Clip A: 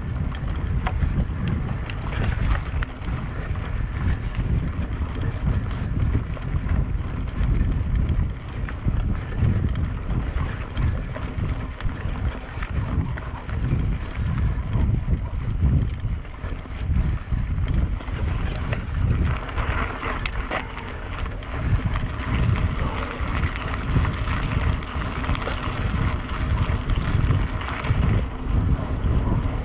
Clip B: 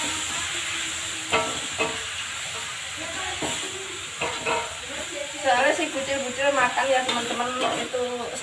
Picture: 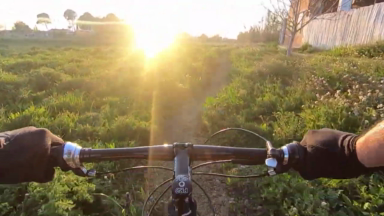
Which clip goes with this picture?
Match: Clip A